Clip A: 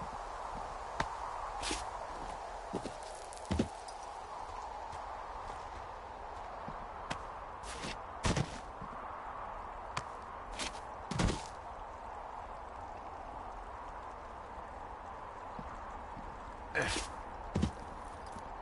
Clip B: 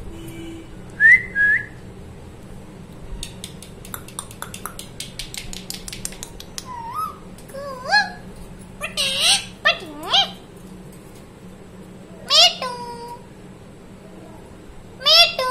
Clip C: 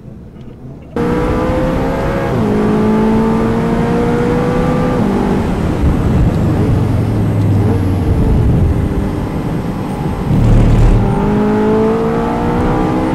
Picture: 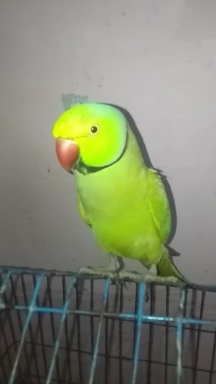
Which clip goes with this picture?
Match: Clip B